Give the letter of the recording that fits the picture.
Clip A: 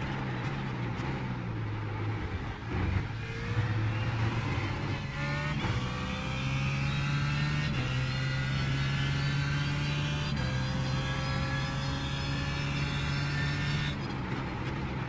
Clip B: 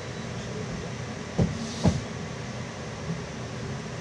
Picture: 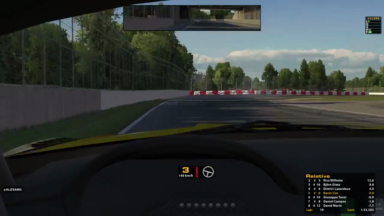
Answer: A